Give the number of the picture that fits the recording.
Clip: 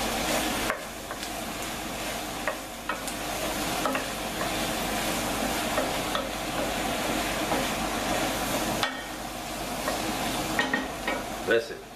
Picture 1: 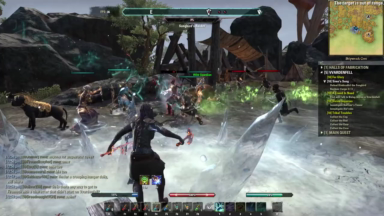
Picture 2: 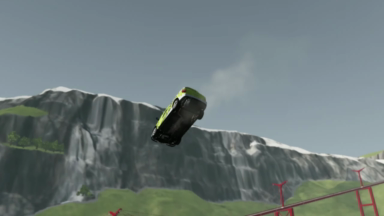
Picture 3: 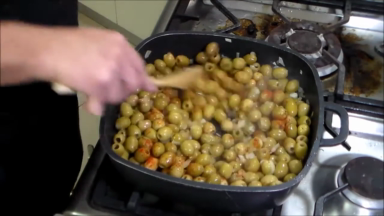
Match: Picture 3